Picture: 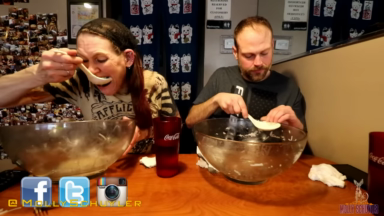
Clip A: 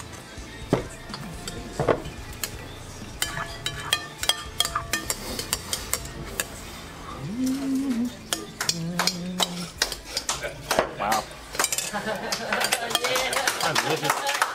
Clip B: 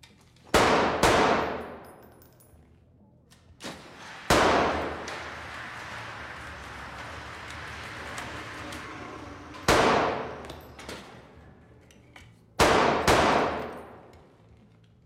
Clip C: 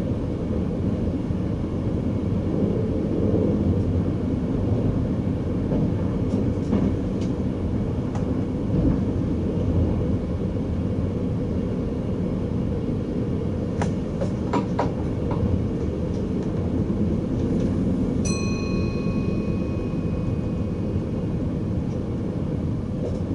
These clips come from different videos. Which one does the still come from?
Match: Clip A